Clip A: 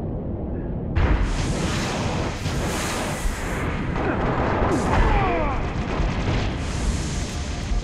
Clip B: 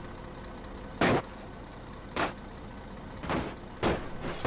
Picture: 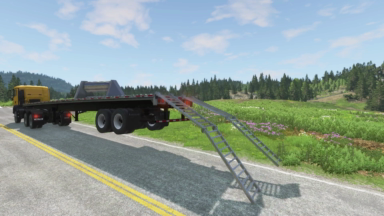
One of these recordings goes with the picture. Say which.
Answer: B